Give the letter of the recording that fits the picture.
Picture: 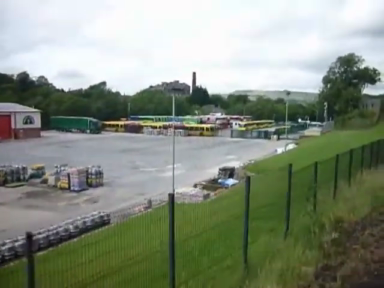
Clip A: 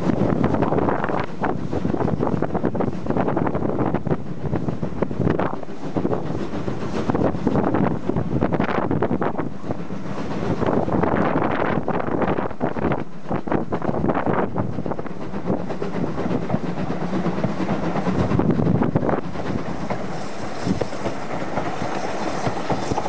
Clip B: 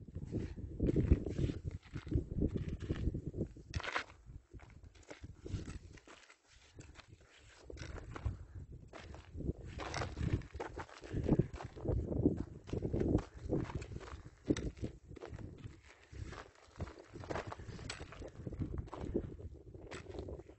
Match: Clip A